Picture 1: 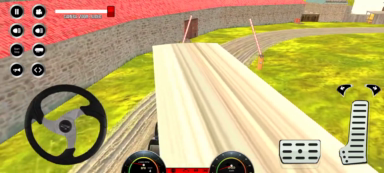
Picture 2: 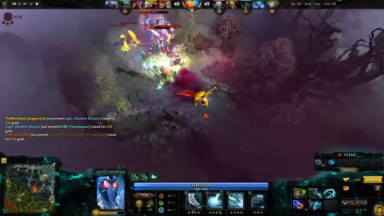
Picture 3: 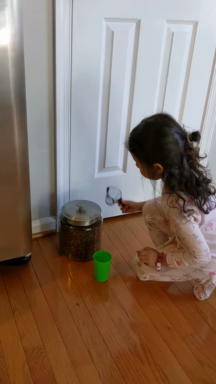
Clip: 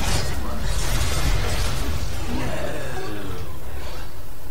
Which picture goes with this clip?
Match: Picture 2